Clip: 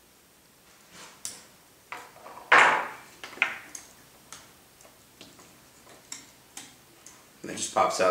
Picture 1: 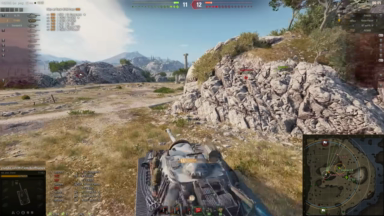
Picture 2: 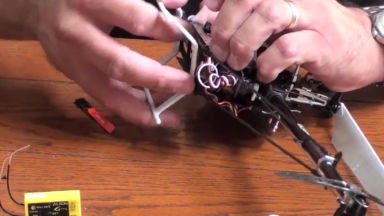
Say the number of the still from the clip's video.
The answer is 2